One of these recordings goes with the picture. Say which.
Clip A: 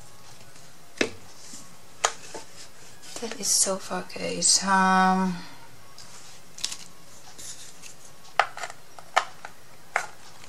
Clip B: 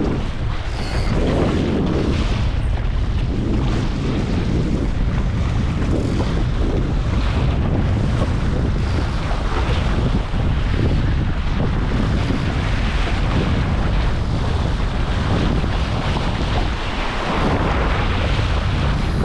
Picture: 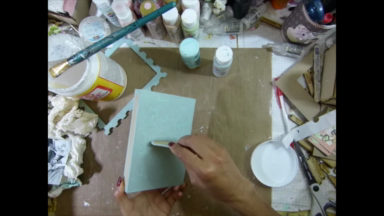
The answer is A